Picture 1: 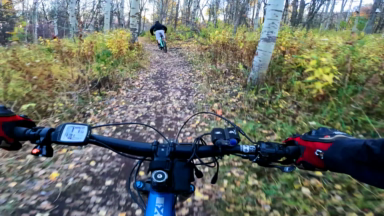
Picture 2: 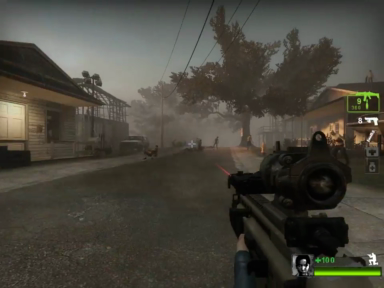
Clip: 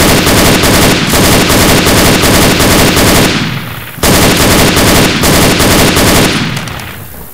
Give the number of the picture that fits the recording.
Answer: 2